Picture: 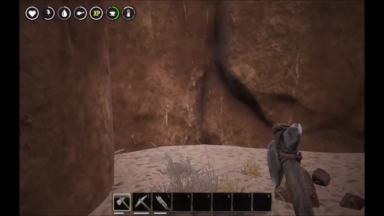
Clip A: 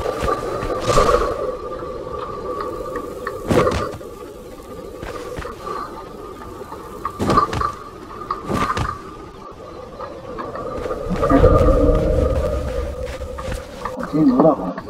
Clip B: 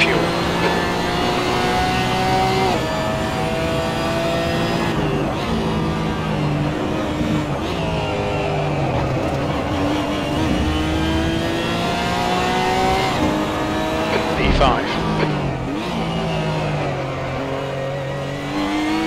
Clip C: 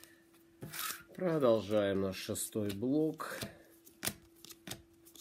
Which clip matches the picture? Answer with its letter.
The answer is A